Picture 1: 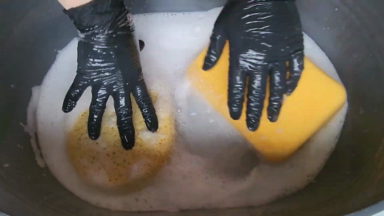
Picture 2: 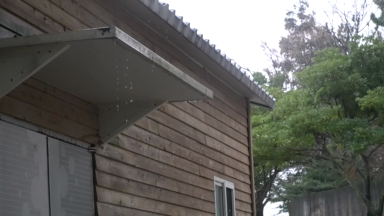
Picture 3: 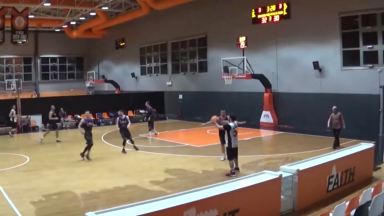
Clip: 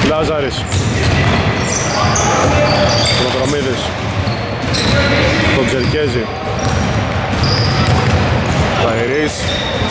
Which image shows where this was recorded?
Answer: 3